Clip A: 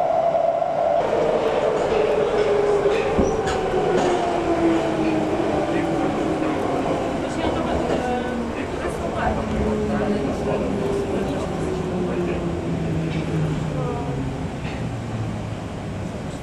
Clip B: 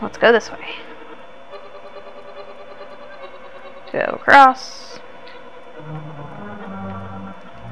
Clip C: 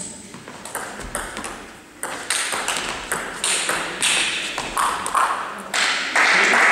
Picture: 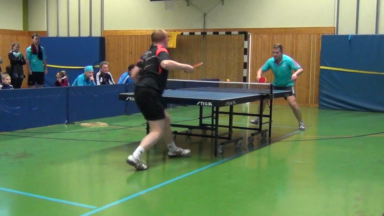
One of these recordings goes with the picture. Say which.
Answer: C